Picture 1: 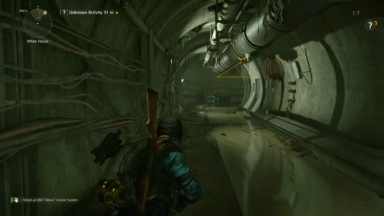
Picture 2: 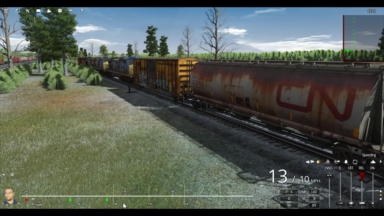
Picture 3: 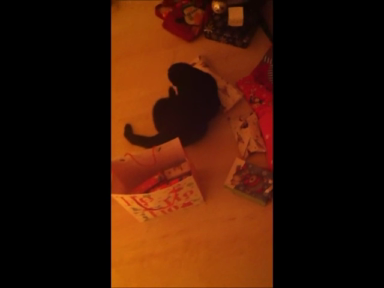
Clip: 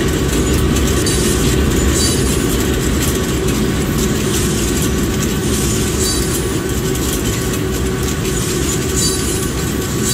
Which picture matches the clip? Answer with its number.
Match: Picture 2